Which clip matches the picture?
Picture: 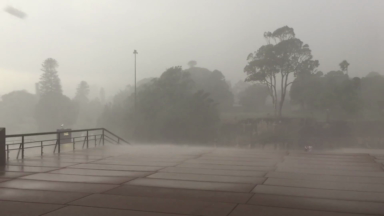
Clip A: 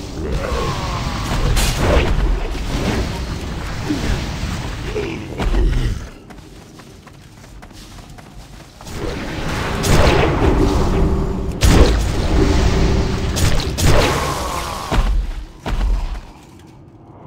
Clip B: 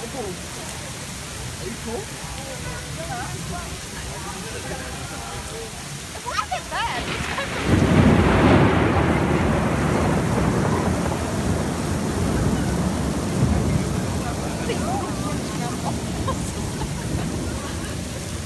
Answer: B